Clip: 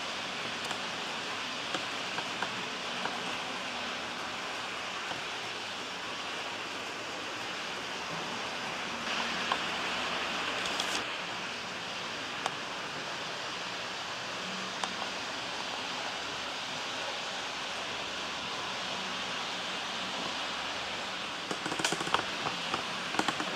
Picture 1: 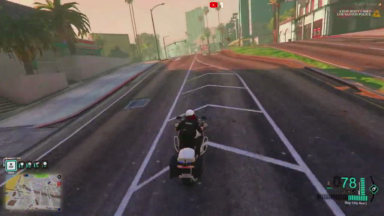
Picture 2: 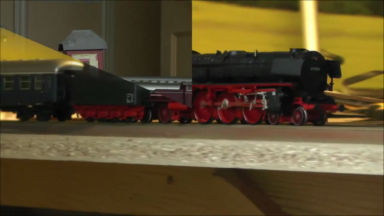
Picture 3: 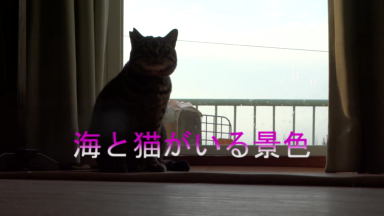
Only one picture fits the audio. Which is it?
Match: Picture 2